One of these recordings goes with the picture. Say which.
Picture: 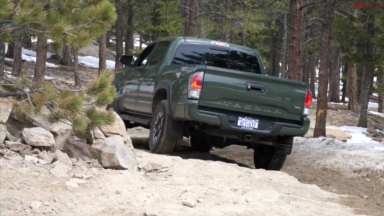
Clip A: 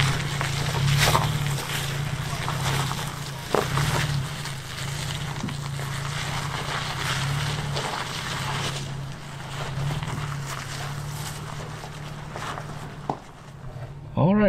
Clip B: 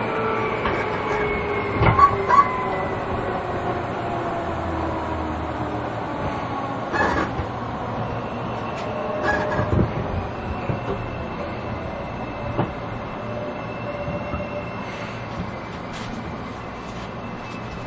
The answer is A